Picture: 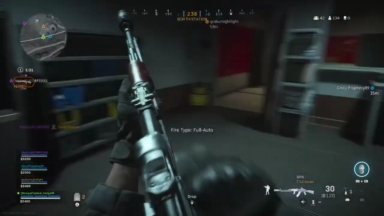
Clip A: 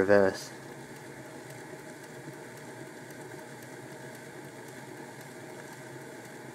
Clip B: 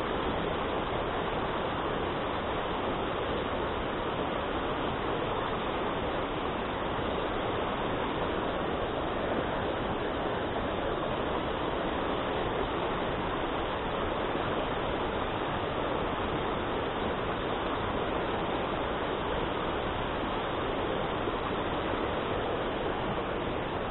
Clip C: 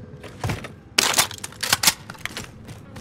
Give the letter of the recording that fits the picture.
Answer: C